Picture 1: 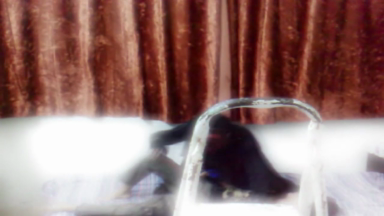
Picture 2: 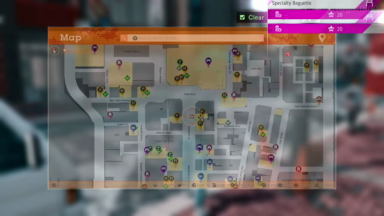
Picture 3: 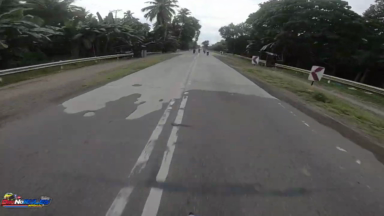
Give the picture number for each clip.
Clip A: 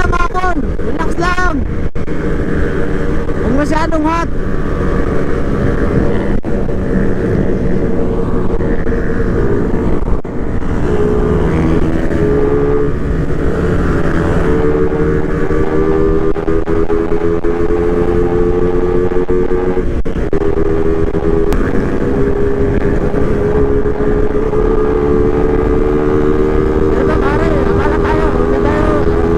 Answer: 3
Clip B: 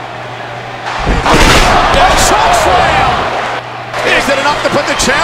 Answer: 1